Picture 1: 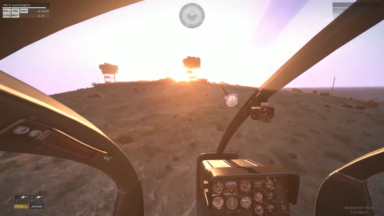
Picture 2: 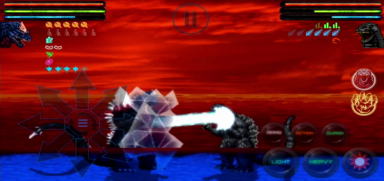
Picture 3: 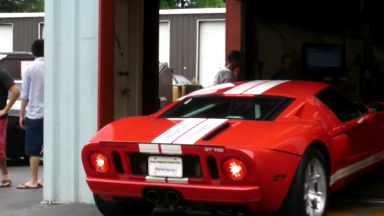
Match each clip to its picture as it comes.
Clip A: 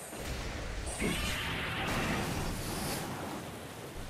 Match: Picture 2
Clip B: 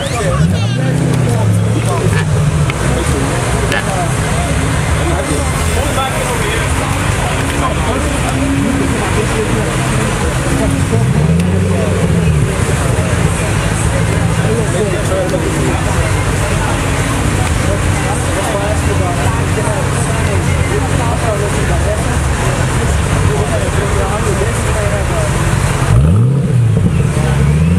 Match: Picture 3